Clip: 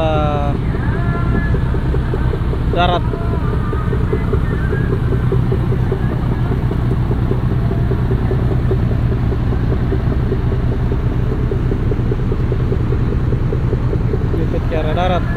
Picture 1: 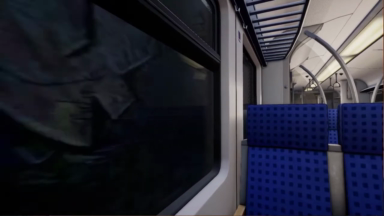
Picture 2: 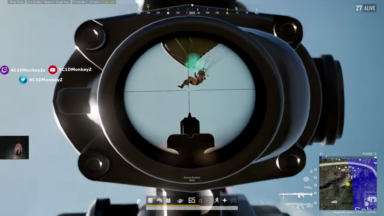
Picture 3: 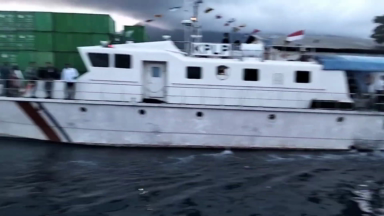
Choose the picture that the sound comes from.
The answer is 3